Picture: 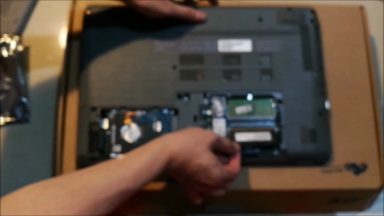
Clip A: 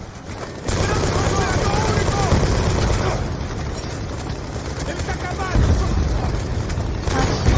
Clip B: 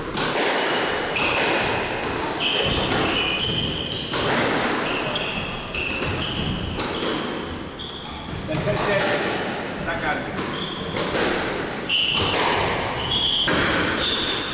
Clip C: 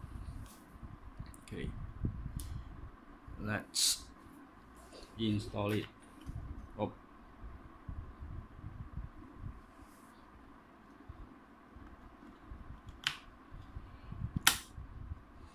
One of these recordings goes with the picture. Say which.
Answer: C